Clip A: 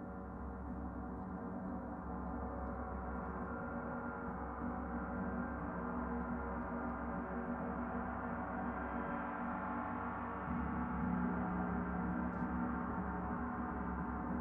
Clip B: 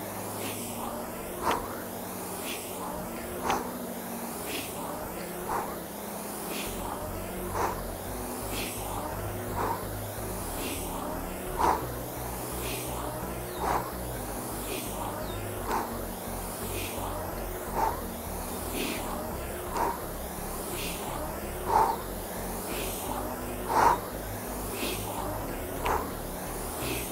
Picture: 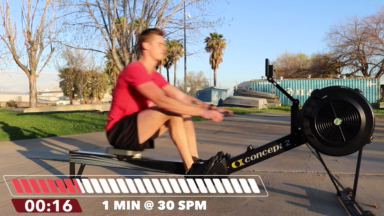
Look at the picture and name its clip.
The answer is B